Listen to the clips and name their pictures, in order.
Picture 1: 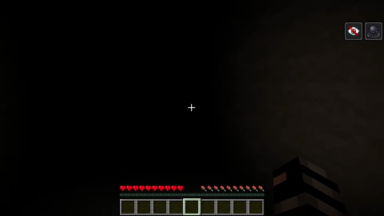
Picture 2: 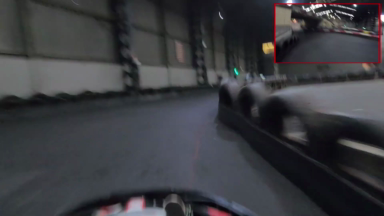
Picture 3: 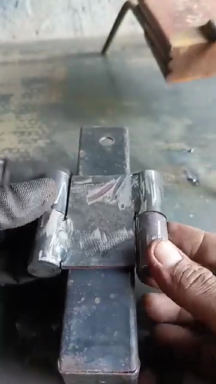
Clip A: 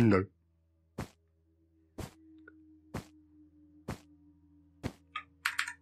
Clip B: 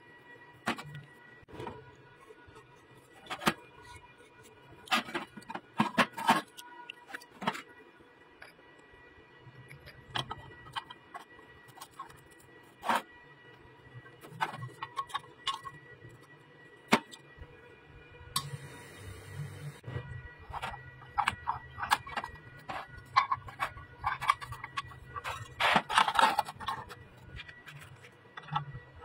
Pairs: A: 1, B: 3